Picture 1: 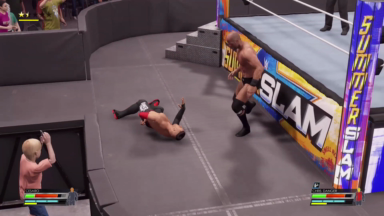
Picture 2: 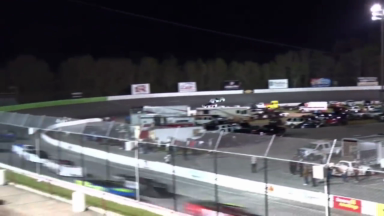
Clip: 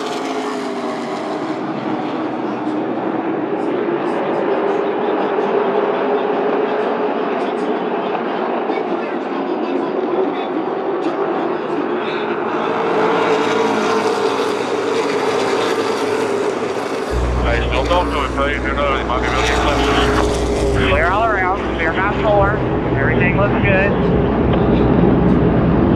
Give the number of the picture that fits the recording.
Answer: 2